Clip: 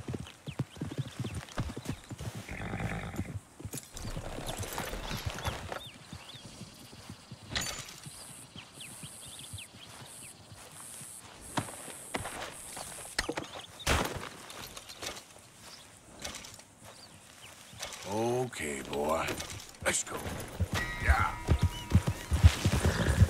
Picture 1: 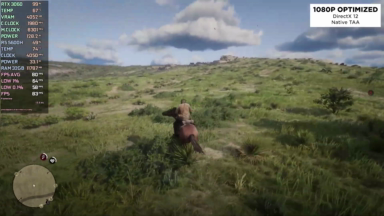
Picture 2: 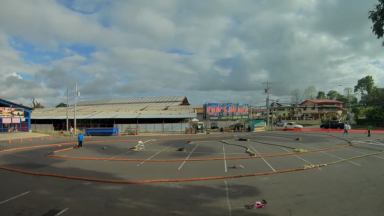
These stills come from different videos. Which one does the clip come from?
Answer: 1